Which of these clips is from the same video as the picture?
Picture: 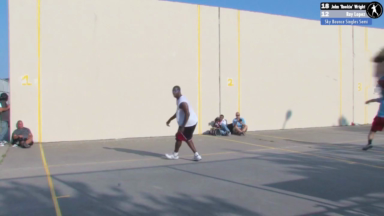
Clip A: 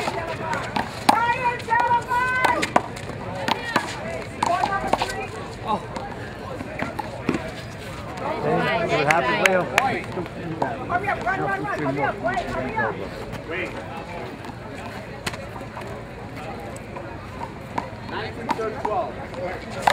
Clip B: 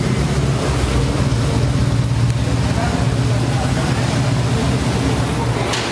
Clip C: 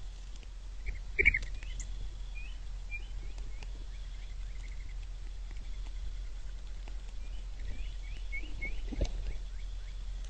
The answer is A